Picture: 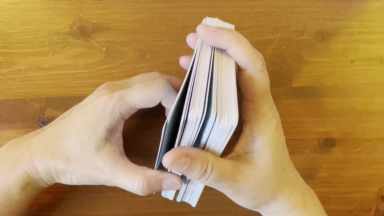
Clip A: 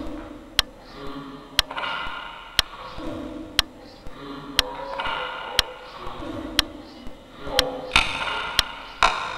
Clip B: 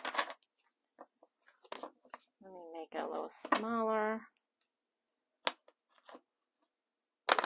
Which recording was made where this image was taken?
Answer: B